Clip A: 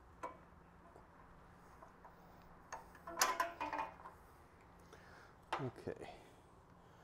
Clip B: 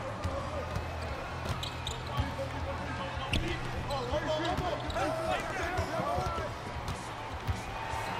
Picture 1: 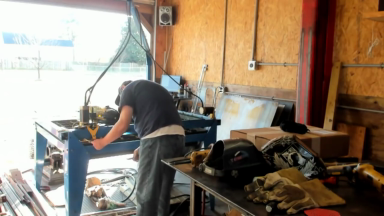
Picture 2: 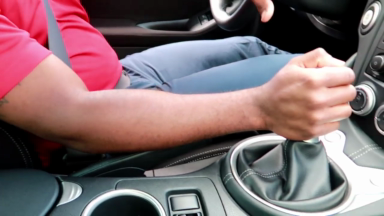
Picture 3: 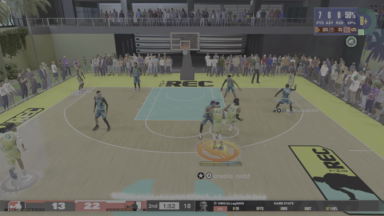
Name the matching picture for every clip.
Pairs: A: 1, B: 3